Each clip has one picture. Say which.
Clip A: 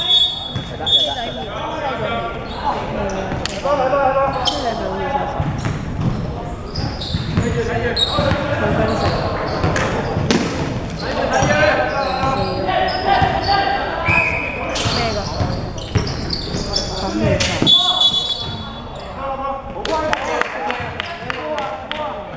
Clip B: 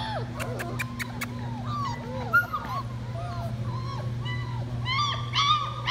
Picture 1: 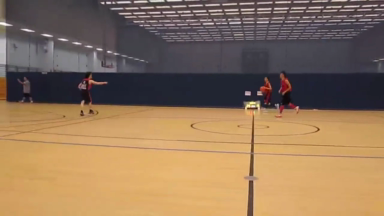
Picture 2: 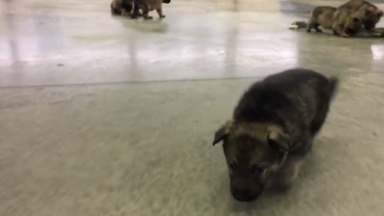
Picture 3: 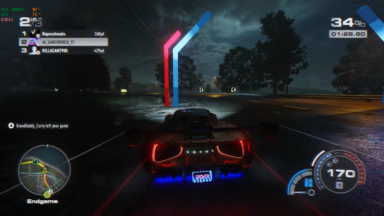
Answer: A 1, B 2